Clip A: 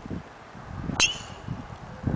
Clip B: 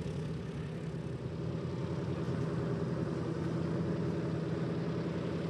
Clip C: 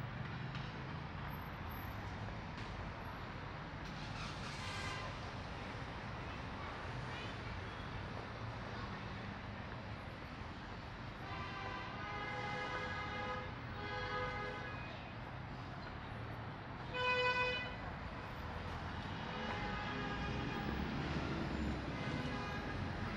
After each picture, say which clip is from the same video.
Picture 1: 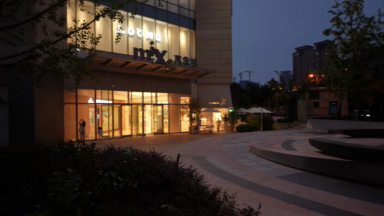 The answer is C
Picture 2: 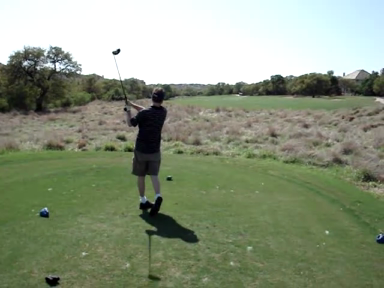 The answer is A